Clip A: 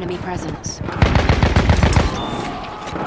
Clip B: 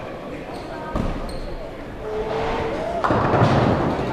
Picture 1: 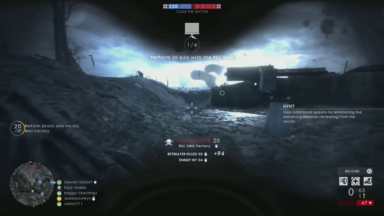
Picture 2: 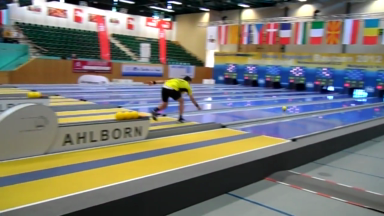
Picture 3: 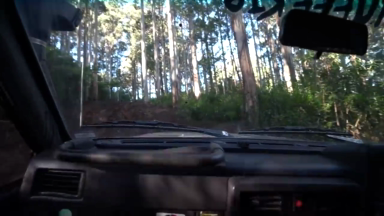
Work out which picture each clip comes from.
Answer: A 1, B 2